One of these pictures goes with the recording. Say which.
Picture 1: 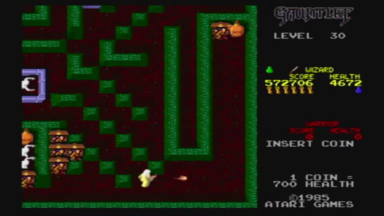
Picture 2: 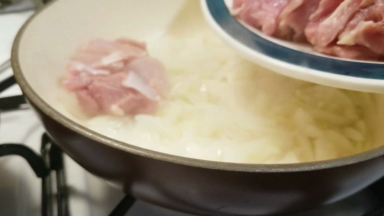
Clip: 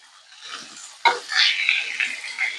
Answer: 2